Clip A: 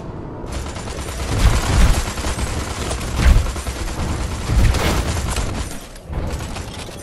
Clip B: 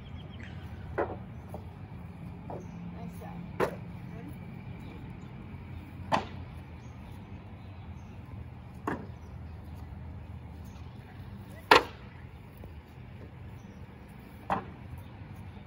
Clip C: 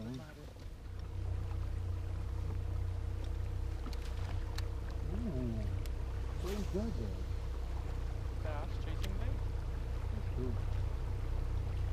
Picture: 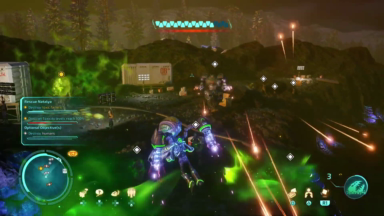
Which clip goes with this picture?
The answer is A